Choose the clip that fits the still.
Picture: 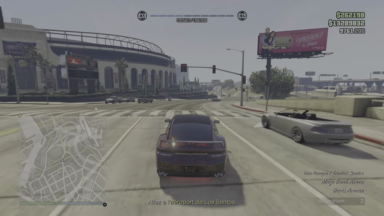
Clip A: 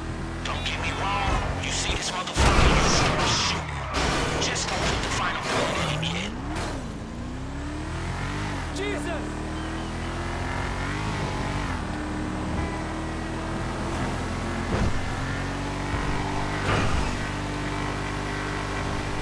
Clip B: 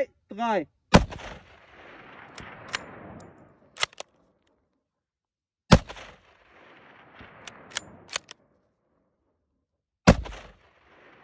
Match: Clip A